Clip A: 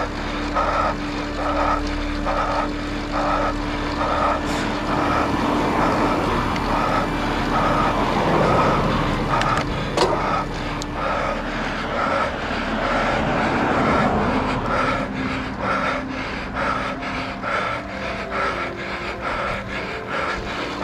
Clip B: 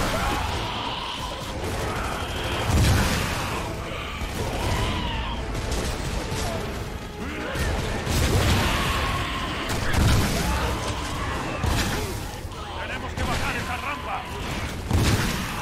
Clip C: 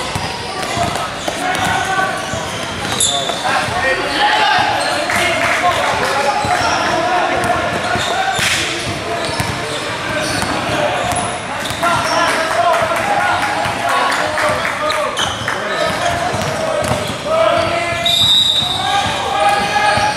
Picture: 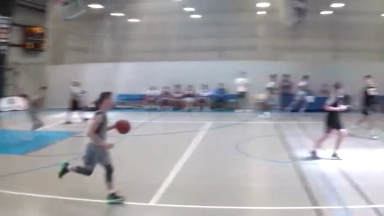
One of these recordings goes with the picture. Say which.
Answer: C